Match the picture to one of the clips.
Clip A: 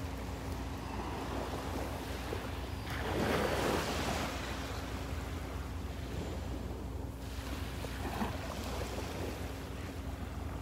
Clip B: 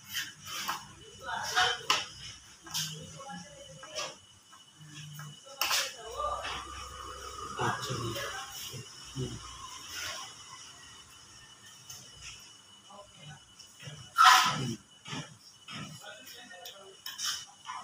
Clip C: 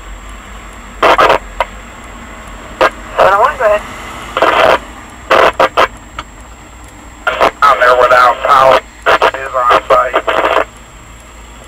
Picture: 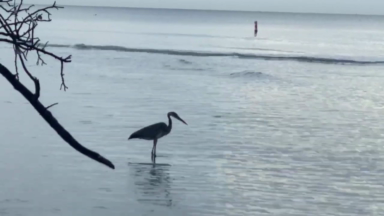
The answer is A